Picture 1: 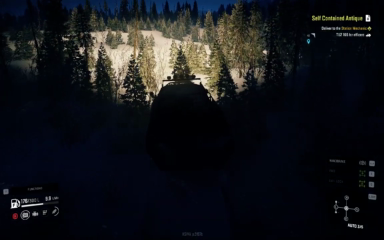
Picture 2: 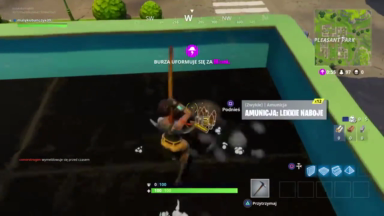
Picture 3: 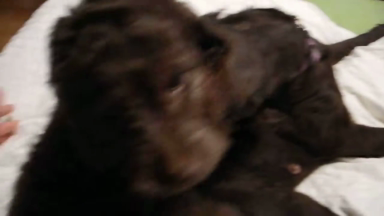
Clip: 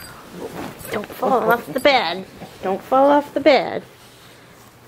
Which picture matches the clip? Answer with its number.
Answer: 3